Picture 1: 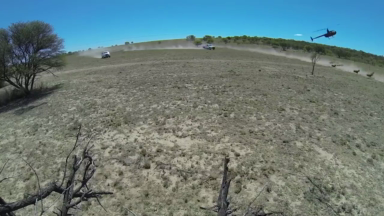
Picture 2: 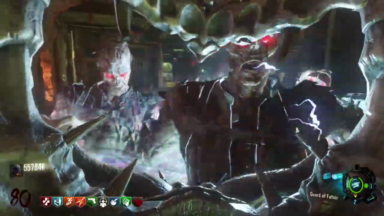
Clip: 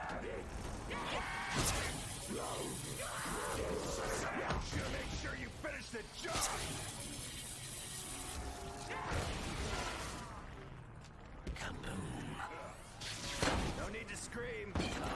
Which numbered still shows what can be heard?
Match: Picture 2